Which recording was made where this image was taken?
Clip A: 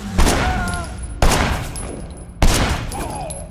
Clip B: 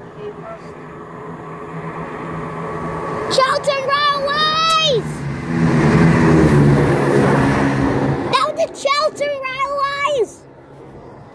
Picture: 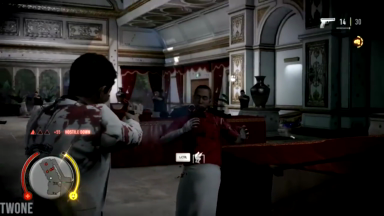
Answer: A